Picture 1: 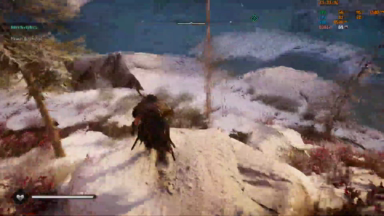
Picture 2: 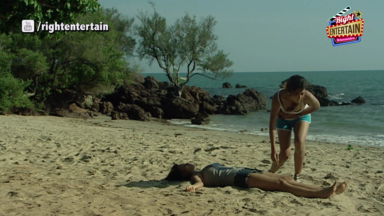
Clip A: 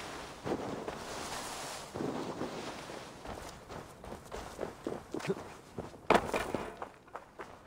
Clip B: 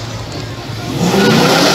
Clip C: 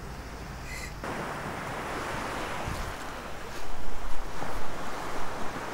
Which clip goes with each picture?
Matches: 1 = A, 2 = C